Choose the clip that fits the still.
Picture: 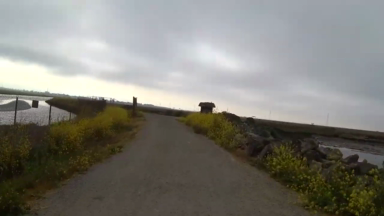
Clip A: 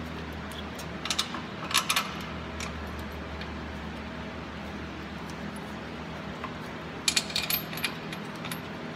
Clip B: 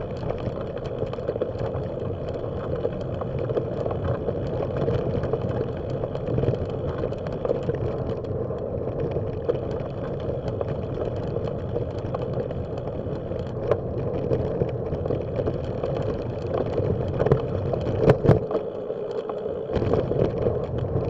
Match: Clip B